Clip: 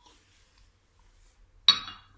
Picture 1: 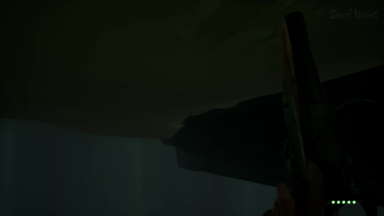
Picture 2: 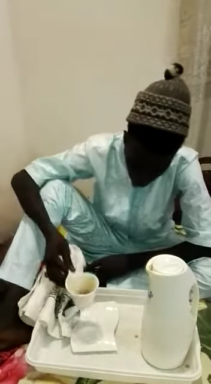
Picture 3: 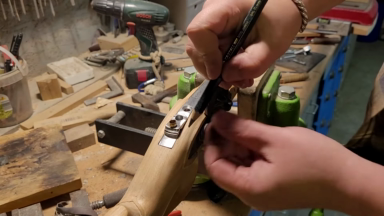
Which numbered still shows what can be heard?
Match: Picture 2